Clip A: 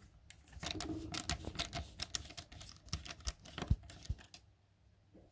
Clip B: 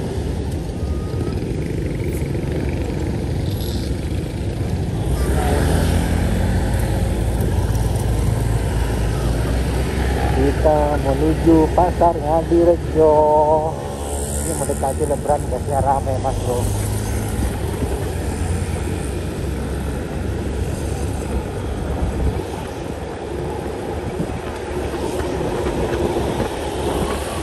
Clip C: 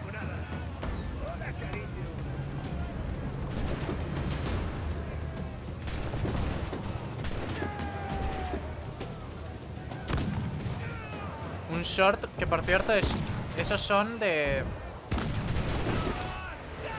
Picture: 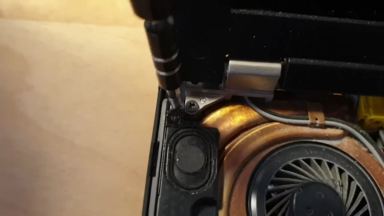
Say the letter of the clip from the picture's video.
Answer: A